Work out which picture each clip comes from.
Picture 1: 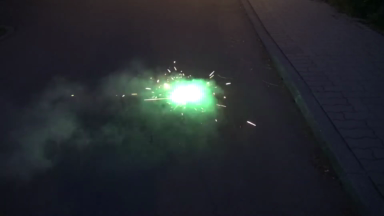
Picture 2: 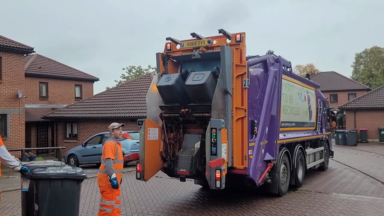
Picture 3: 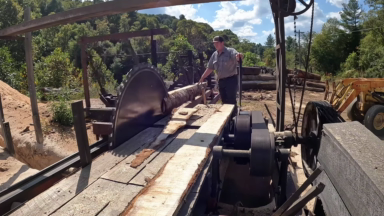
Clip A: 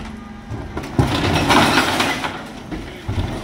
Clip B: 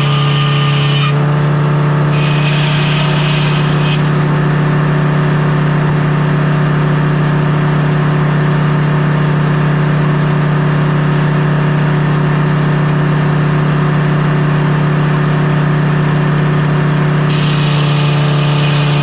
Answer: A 2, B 3